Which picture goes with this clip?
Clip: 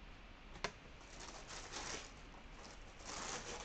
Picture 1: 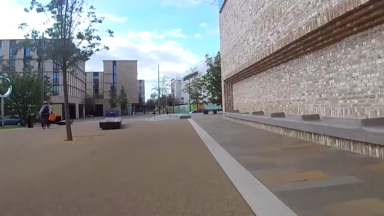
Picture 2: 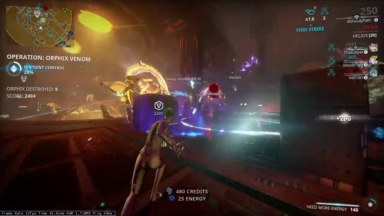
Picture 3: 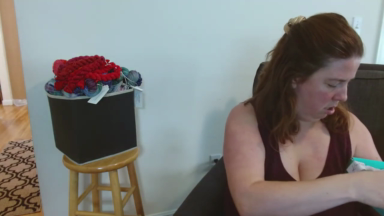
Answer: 3